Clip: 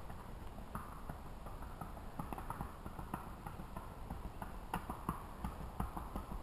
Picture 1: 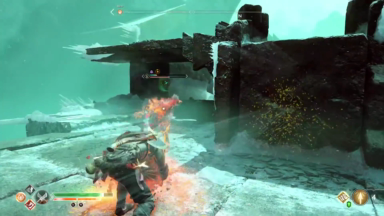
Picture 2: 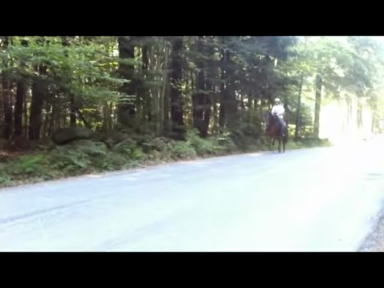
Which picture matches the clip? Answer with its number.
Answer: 2